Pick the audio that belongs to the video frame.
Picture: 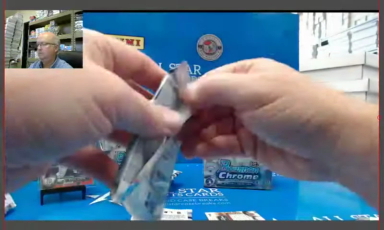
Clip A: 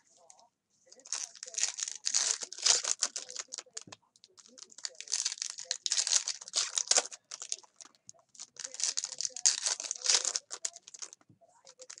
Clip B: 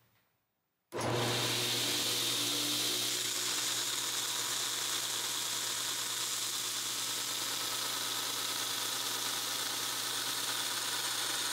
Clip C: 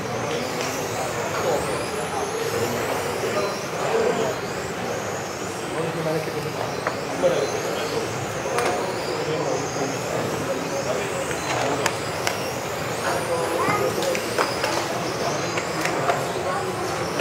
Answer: A